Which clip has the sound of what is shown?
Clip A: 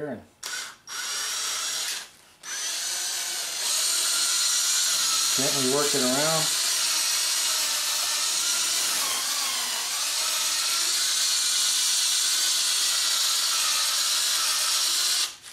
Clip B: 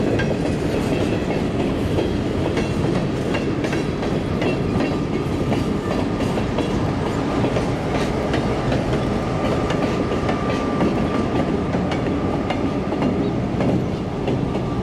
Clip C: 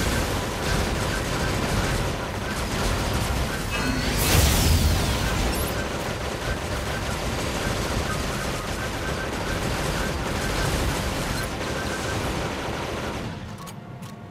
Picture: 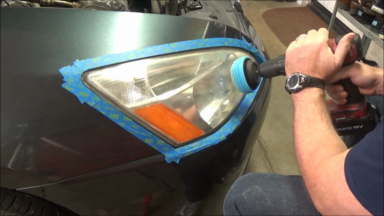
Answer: A